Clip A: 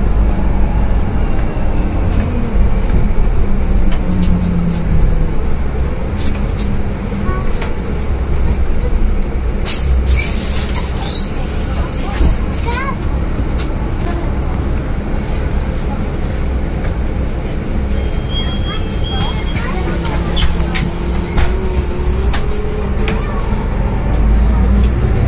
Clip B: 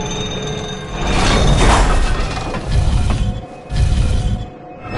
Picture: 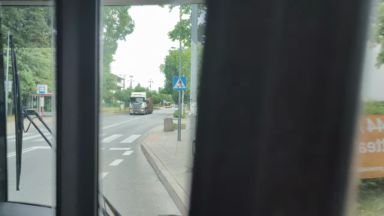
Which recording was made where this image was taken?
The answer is A